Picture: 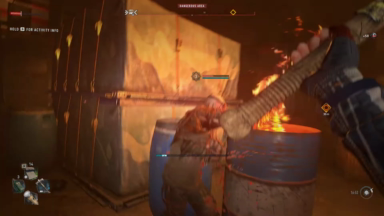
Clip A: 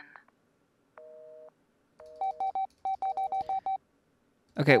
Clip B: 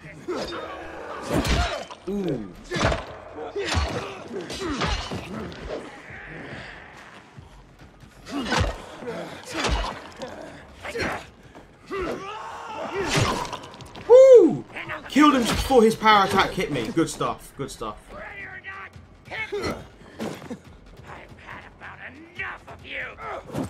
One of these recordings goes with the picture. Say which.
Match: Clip B